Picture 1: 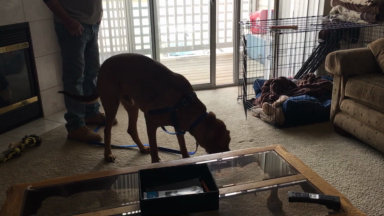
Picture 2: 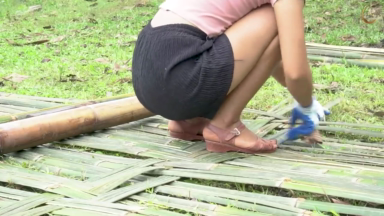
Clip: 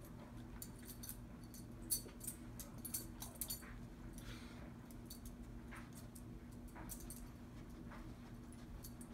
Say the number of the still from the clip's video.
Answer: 1